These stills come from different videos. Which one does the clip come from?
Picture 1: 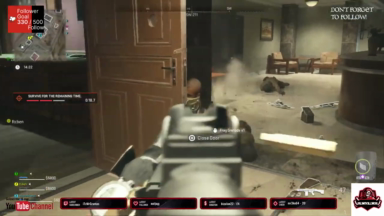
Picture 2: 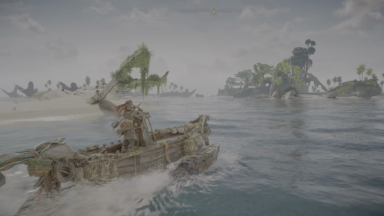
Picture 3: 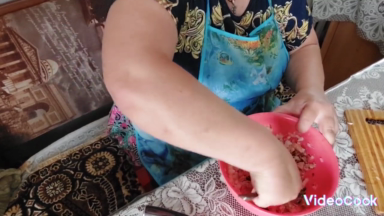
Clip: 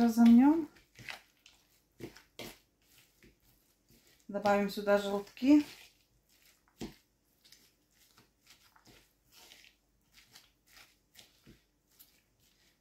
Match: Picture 3